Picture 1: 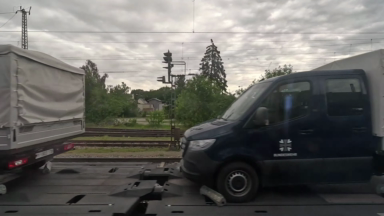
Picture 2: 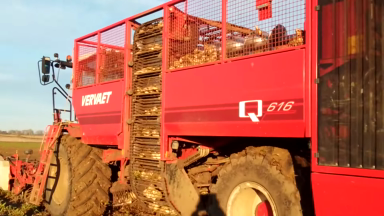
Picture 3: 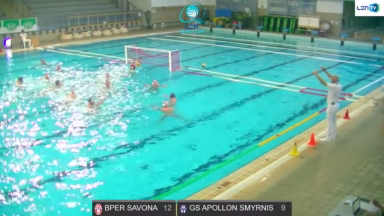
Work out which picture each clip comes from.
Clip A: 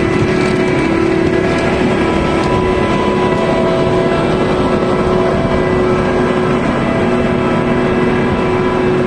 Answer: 2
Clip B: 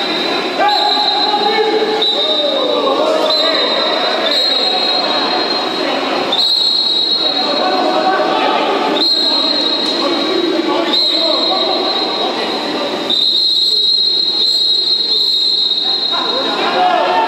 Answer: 3